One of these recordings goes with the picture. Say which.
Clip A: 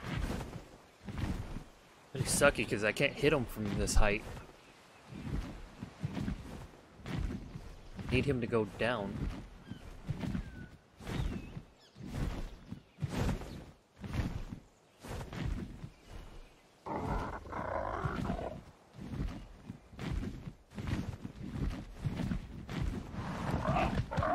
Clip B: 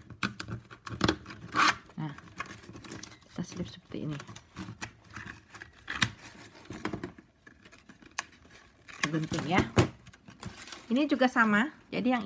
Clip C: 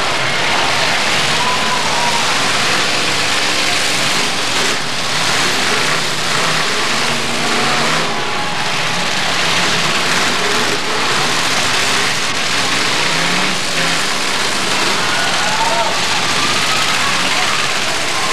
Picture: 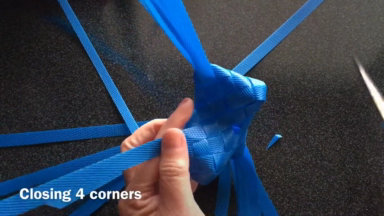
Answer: B